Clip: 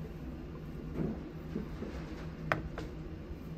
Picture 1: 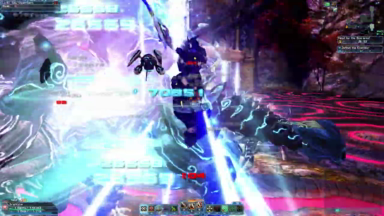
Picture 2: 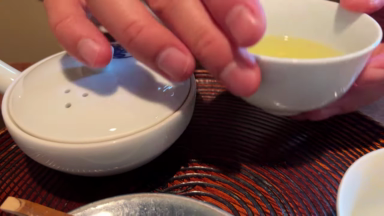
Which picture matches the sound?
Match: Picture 2